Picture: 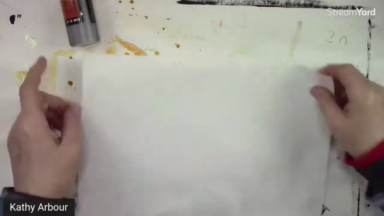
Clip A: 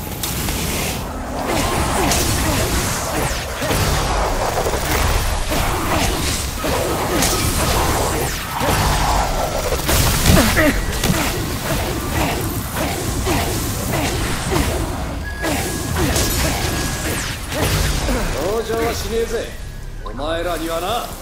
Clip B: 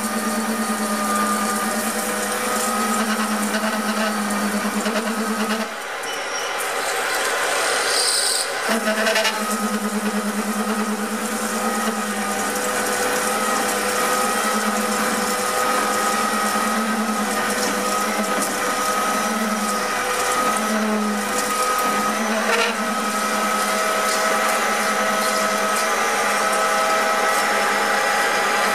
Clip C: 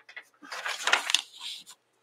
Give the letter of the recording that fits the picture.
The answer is C